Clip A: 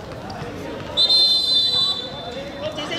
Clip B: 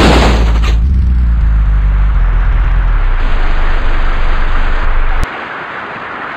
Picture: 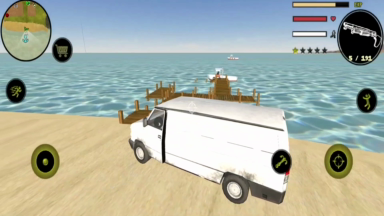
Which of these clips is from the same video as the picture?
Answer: B